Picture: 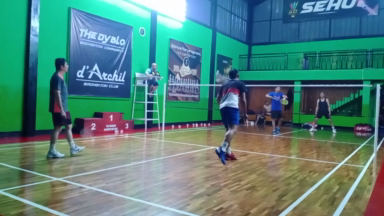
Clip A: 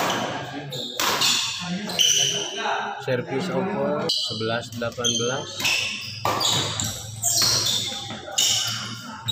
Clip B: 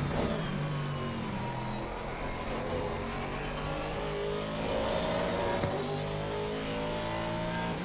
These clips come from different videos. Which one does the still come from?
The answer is A